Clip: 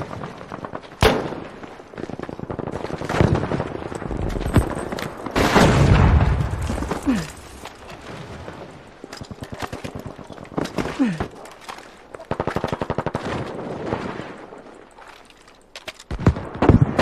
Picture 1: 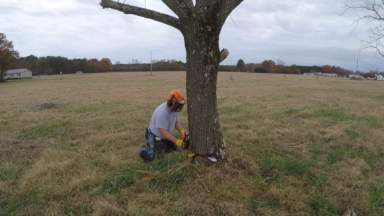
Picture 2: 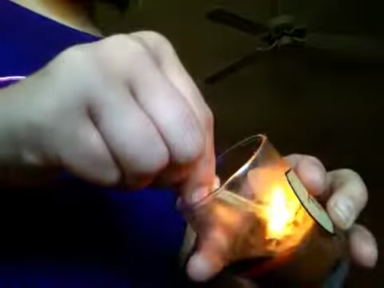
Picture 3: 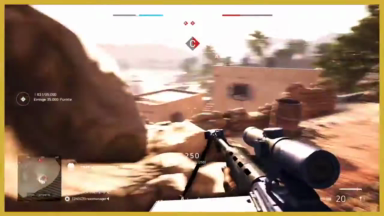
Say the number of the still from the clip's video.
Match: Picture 3